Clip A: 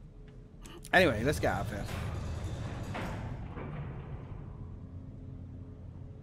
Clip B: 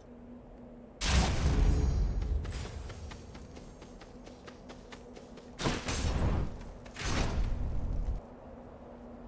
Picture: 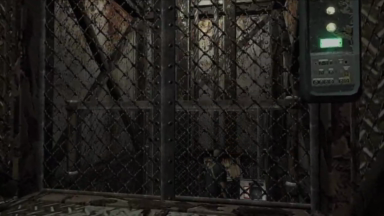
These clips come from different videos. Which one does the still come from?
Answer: A